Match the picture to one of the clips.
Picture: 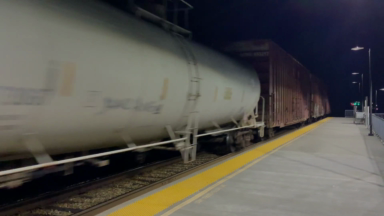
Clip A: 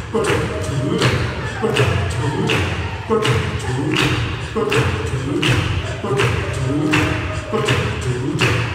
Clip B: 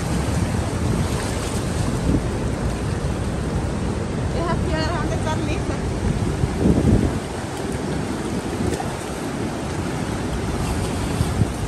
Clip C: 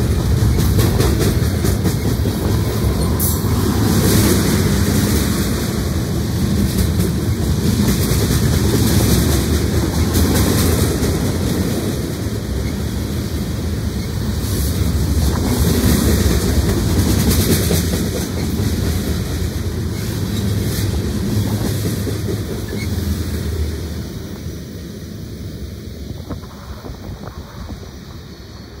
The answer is C